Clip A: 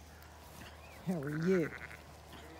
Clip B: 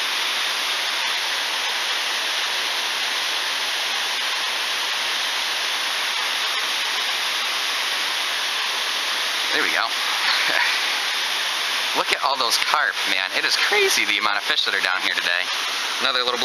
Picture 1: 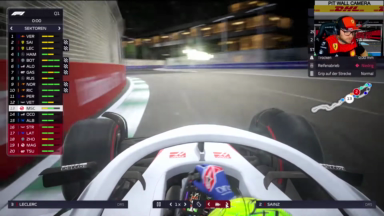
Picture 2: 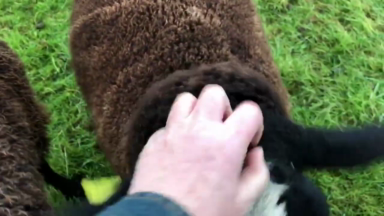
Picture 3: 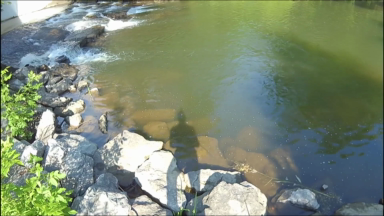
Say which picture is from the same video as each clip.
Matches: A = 2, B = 3